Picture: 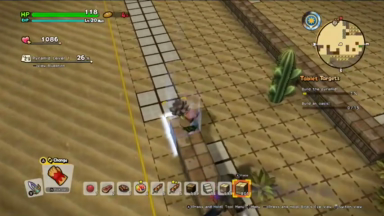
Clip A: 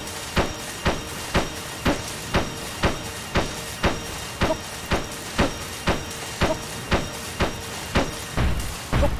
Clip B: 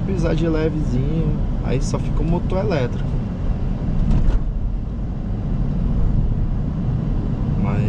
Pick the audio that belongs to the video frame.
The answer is A